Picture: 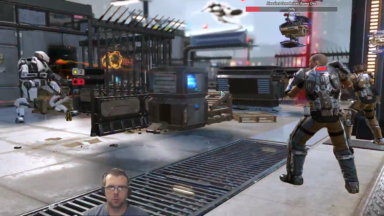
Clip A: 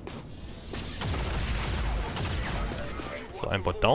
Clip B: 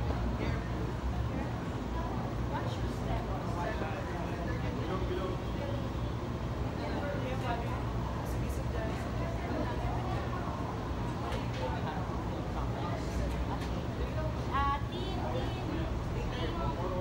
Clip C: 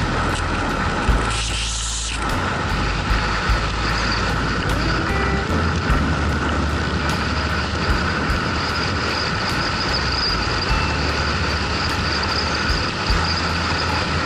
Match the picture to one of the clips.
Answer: A